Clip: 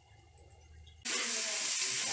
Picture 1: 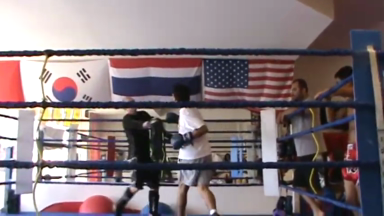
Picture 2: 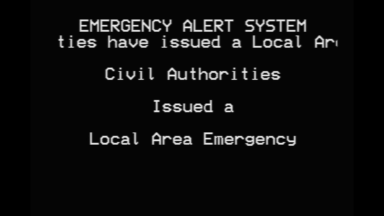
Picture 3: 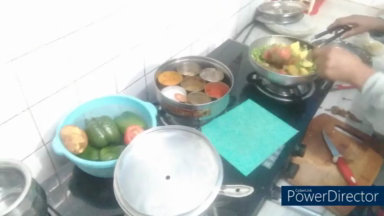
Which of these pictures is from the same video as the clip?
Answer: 3